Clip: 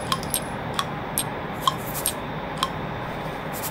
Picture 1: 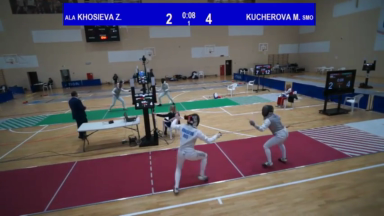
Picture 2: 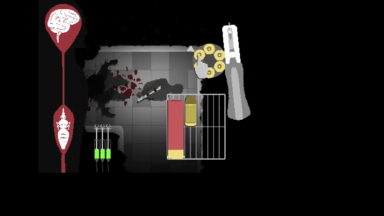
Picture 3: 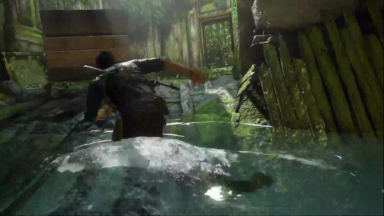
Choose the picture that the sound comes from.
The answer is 2